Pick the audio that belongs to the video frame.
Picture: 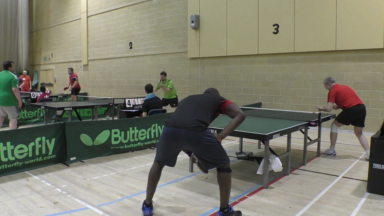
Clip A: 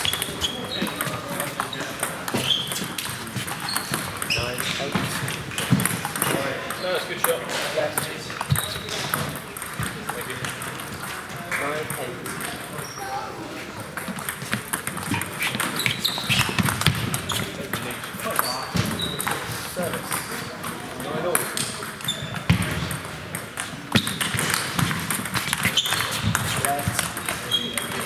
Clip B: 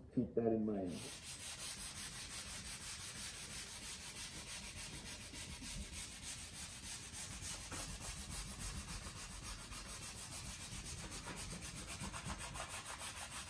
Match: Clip A